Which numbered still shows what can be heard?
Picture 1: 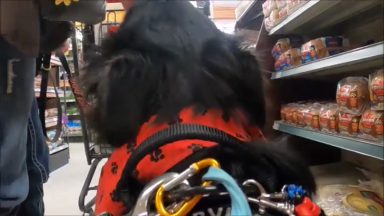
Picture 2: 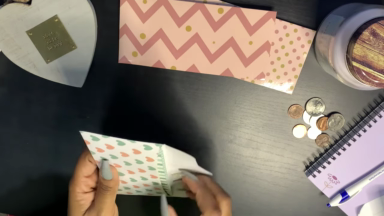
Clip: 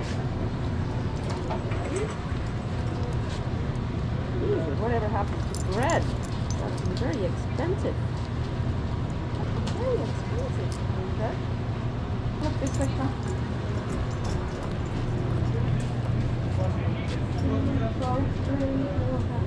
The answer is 1